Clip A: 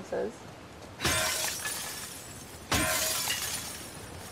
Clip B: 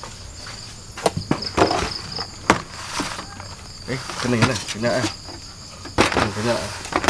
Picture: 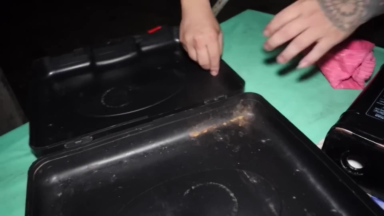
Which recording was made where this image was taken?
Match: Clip B